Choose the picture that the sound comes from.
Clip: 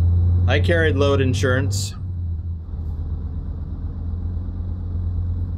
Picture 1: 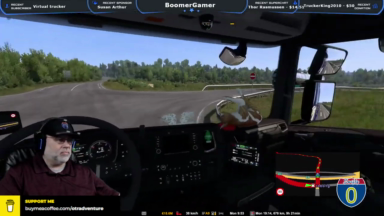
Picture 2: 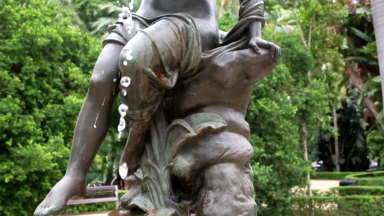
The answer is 1